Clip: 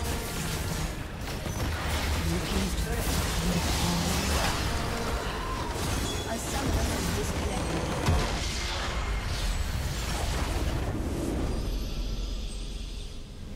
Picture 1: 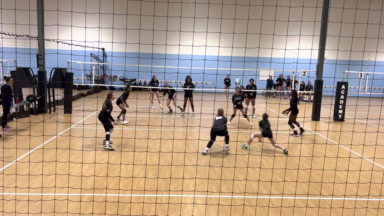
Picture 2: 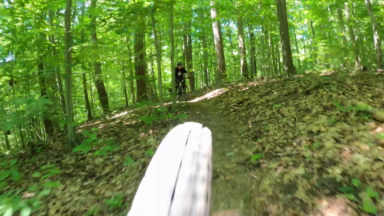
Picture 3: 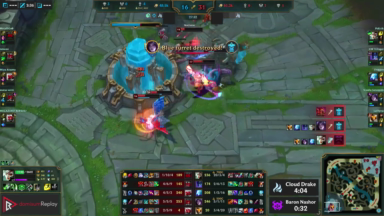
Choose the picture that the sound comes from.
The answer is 3